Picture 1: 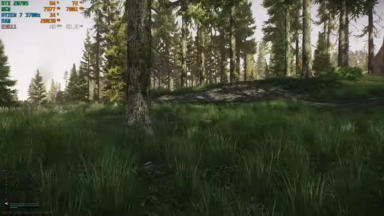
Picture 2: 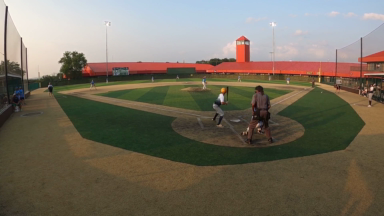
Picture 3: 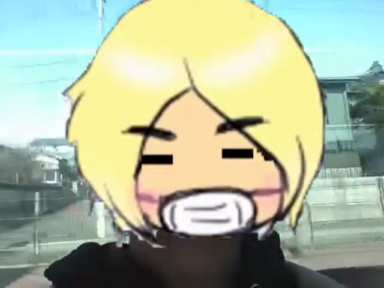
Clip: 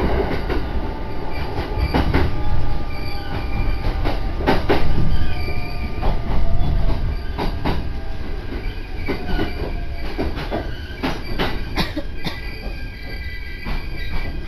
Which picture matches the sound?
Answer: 3